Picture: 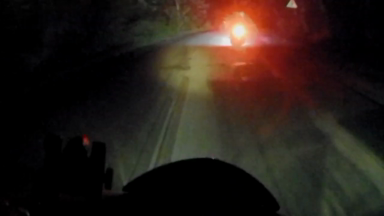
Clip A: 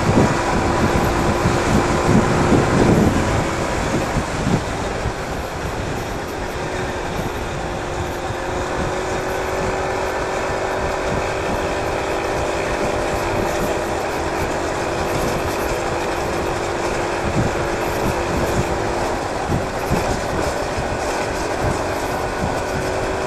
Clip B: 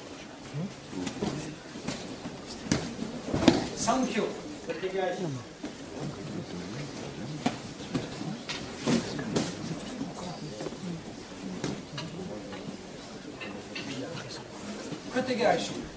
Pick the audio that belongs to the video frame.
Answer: A